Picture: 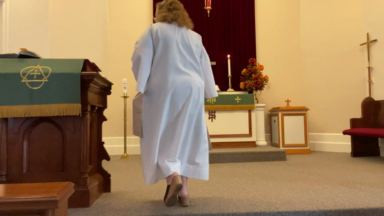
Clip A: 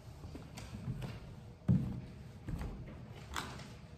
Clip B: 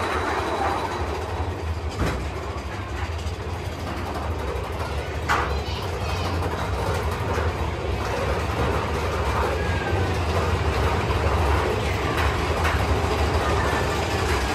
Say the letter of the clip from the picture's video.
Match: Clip A